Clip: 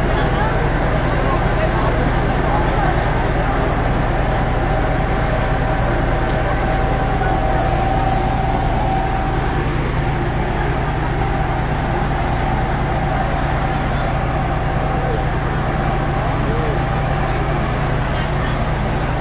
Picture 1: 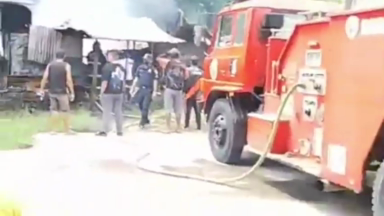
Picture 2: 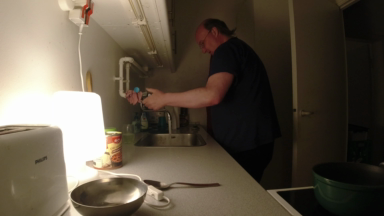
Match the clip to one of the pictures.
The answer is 1